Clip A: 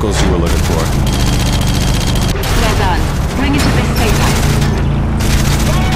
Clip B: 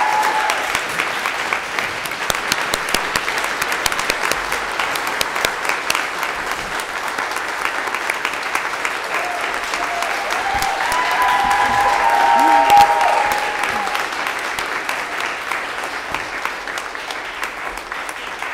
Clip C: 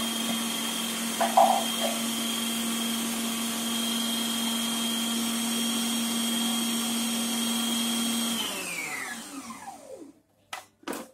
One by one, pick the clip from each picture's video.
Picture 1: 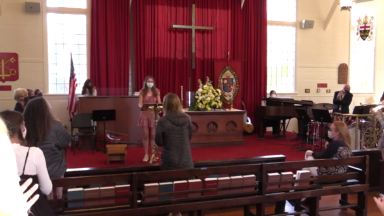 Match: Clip B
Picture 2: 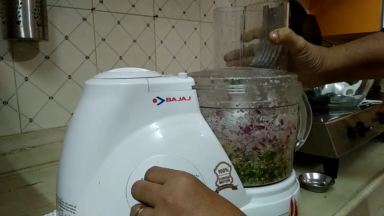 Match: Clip C